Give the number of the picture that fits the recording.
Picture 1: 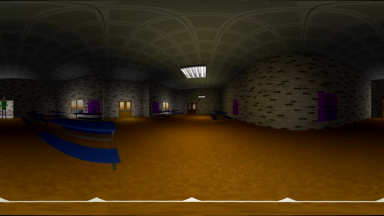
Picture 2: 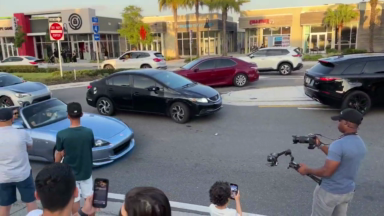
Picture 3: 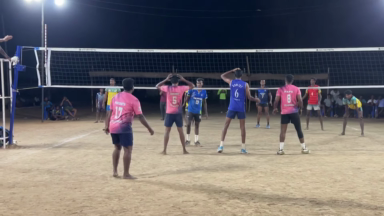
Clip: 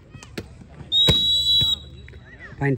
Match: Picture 3